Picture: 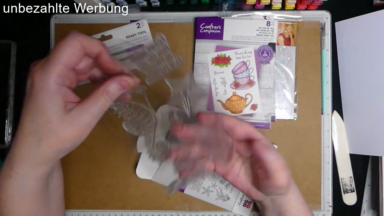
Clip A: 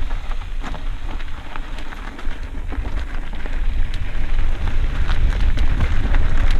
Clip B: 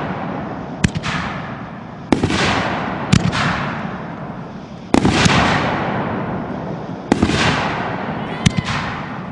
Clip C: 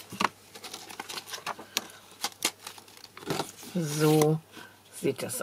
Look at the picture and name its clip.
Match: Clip C